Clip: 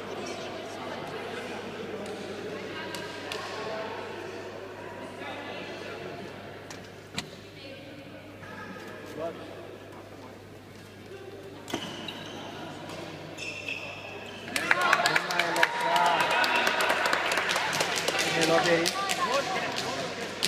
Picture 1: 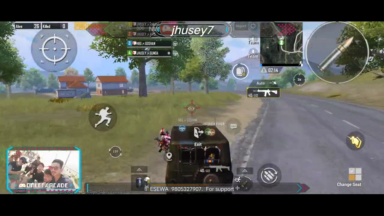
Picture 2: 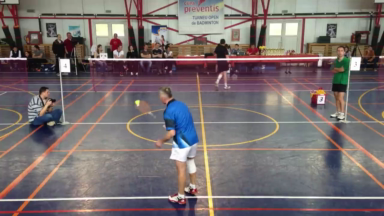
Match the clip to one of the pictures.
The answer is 2